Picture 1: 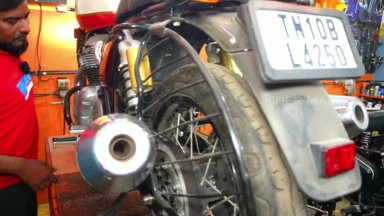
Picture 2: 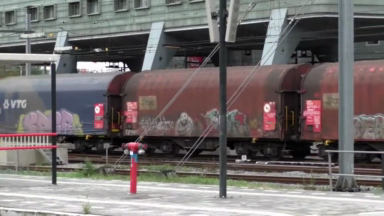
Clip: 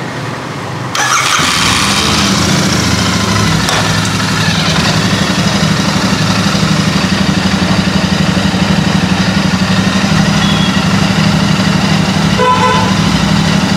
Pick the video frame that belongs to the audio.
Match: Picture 1